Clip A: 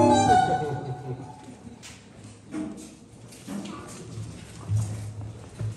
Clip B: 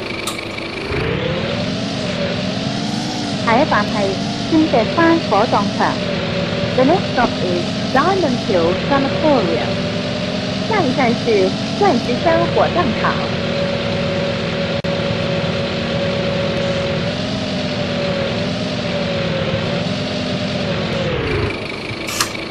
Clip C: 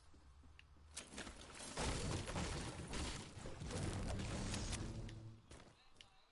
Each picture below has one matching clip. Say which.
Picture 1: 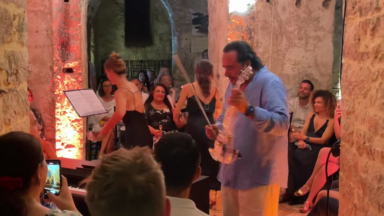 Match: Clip A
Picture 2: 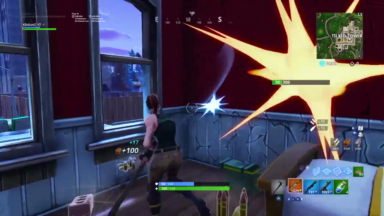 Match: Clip C